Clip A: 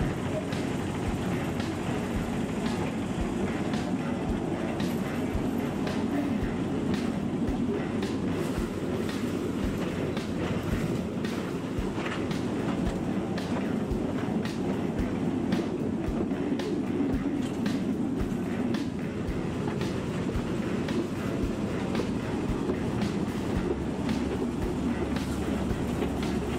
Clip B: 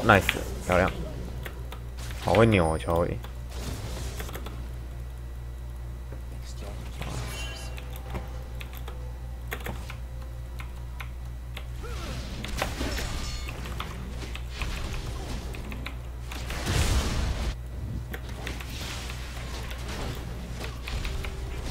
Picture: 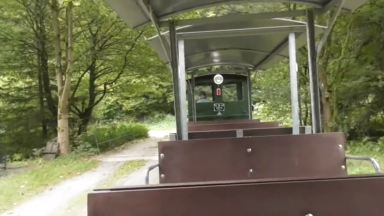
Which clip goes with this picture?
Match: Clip A